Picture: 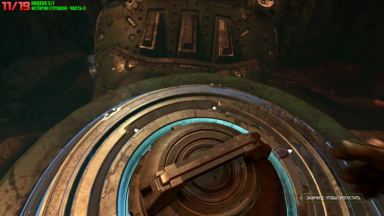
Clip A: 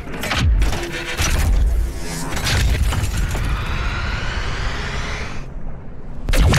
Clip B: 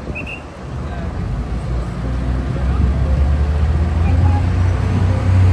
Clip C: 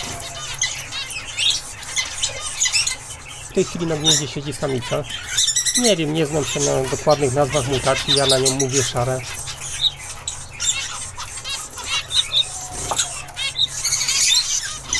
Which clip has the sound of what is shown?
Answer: A